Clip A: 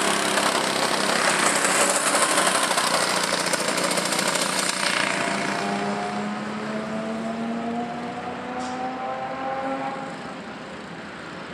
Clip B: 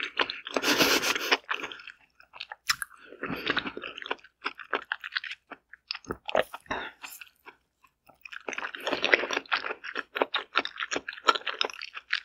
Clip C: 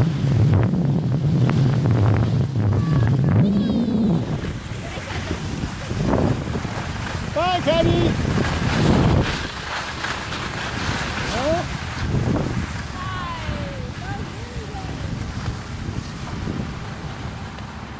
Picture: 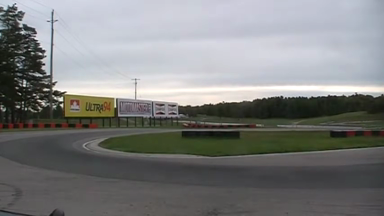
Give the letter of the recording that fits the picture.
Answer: A